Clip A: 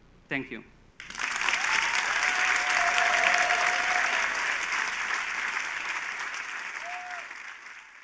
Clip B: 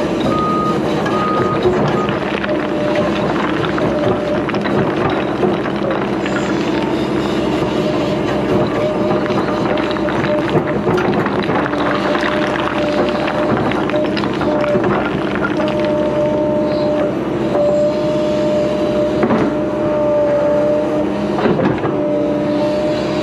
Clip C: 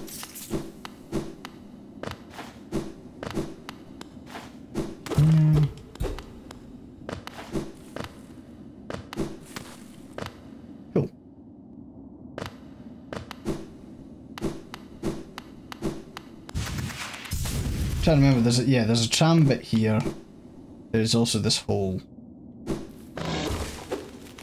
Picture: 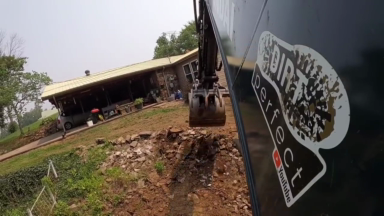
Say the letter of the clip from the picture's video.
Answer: B